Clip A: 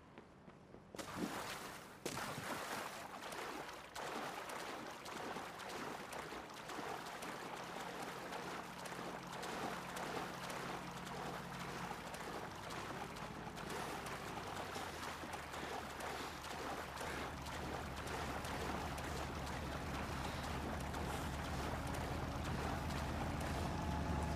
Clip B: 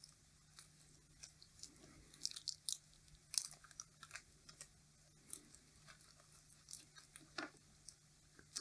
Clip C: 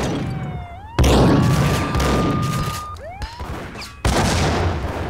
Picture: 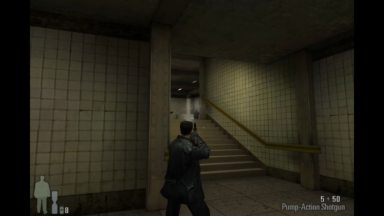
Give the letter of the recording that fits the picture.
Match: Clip C